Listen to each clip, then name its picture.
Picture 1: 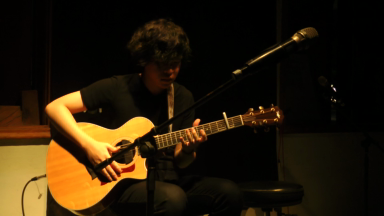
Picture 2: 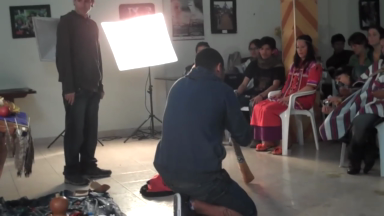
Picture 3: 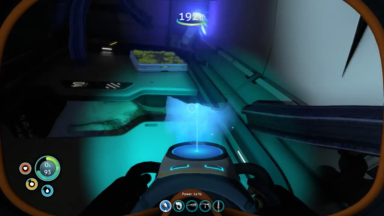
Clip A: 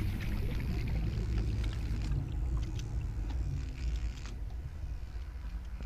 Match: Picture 3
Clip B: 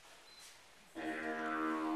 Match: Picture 2